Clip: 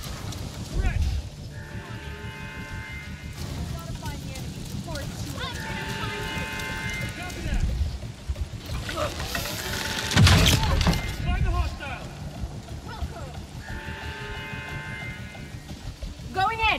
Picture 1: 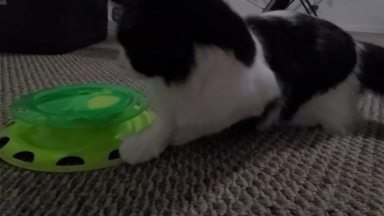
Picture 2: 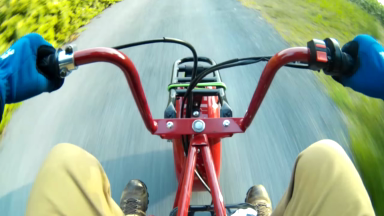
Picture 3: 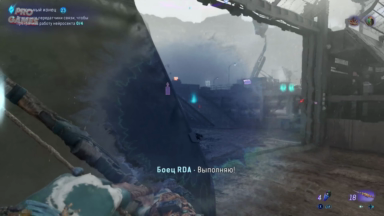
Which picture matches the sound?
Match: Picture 3